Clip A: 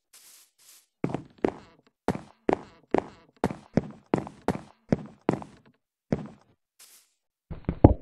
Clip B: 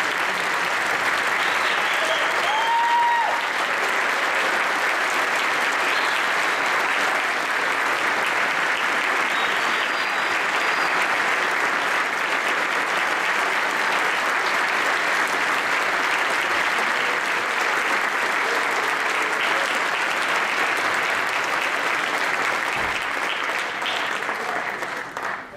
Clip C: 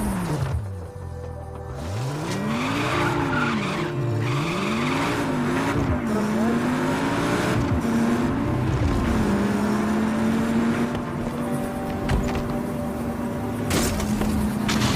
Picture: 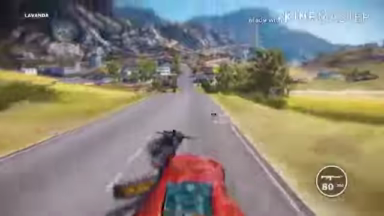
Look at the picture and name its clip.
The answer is C